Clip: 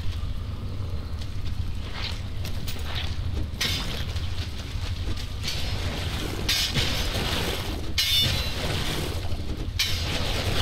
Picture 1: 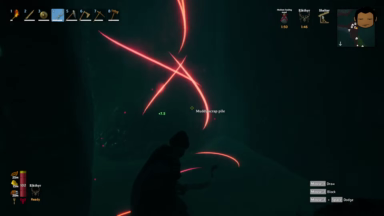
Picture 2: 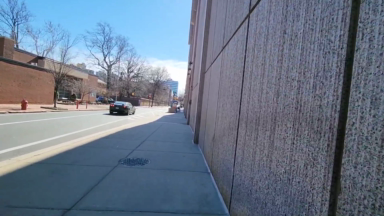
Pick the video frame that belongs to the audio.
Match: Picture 1